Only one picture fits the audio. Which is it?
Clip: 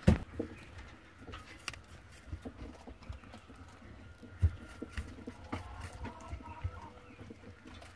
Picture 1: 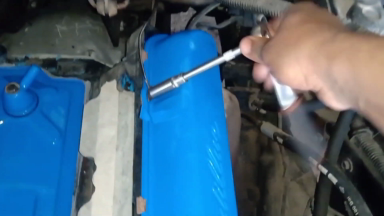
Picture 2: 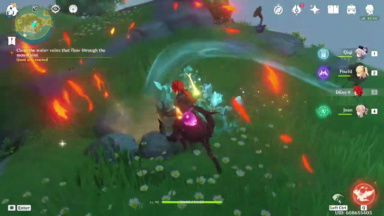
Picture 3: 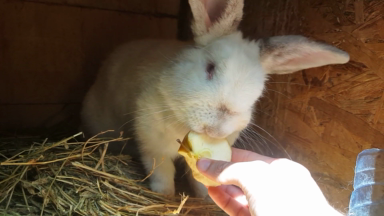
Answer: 3